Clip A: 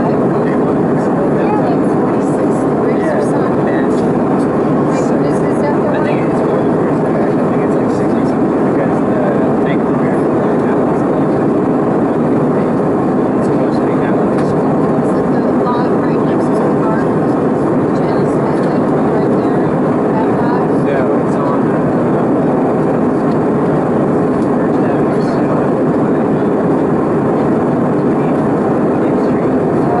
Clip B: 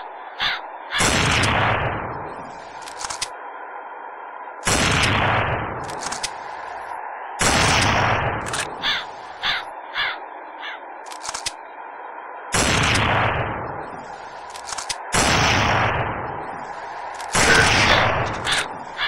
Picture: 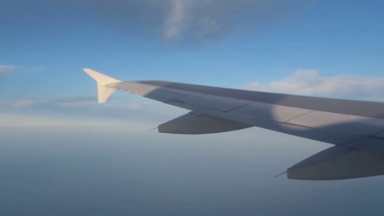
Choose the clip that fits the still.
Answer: A